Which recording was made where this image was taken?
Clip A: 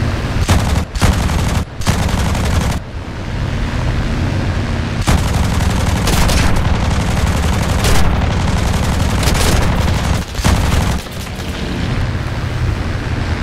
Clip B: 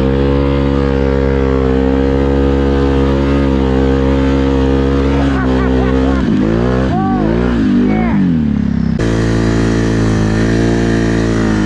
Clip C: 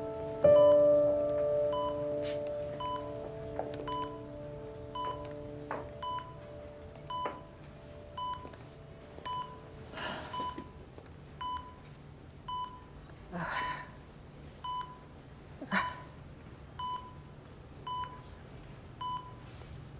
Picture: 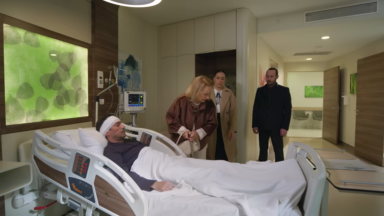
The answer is C